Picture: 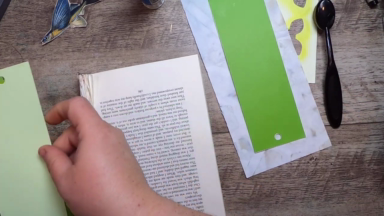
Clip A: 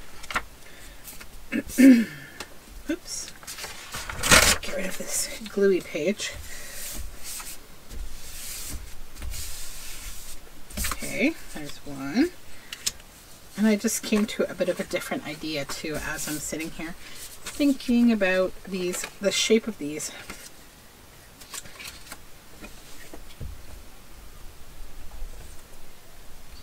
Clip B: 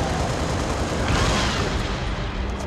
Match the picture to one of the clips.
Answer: A